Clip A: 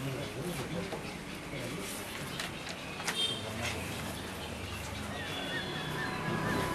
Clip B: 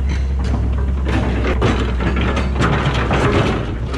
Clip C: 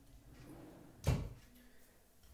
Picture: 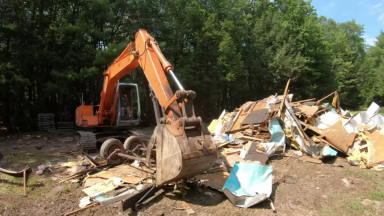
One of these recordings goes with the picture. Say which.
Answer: B